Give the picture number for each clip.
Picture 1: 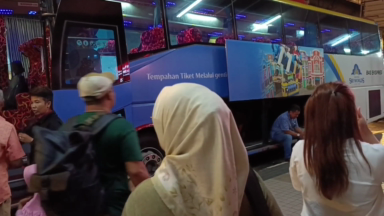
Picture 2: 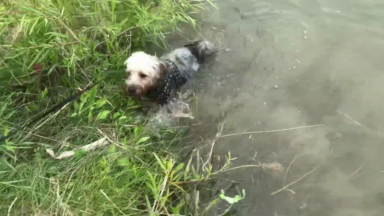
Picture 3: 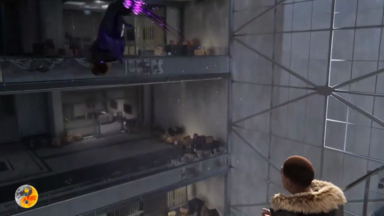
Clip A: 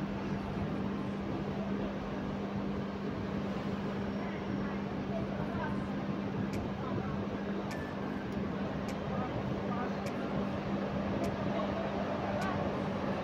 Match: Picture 1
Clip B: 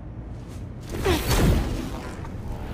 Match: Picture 3